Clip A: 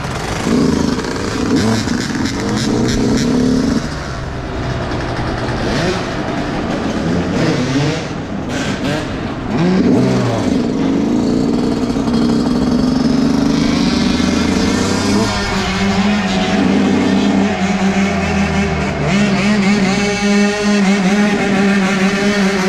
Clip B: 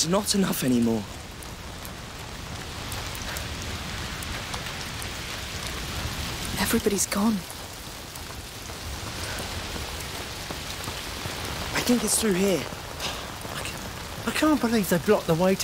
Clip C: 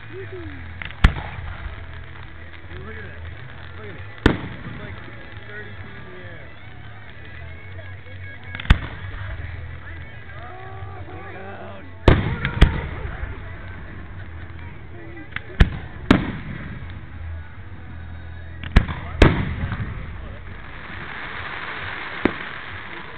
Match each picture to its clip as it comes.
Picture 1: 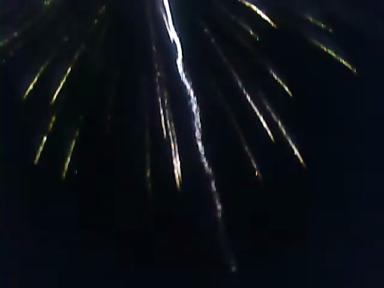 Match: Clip C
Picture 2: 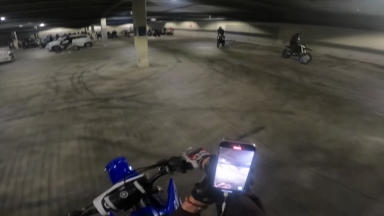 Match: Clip A